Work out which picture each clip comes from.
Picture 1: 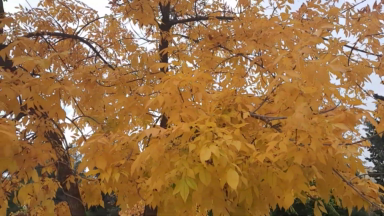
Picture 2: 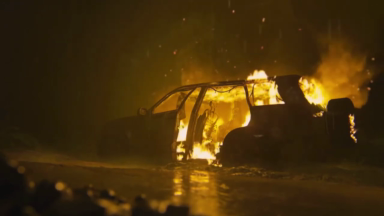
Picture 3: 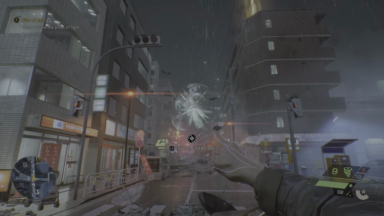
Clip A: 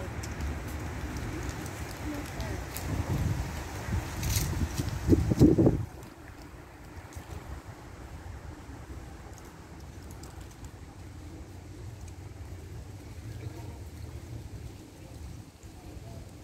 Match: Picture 1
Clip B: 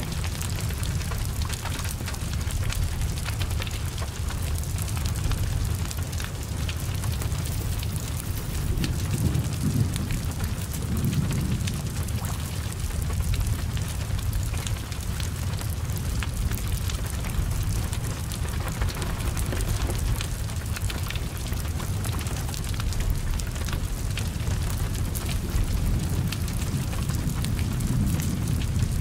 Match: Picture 2